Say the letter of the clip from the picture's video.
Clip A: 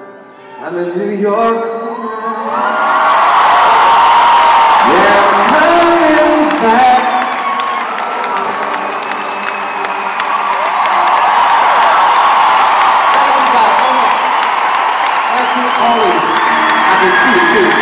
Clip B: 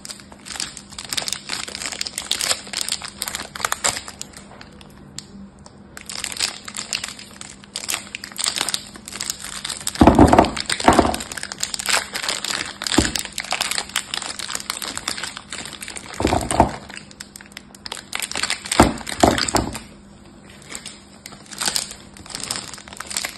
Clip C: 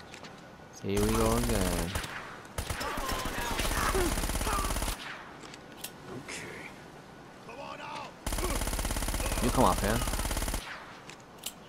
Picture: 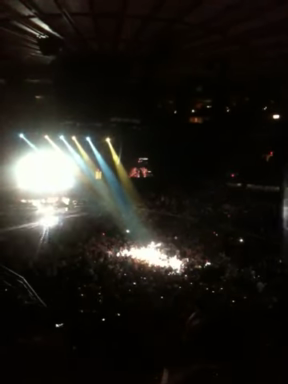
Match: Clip A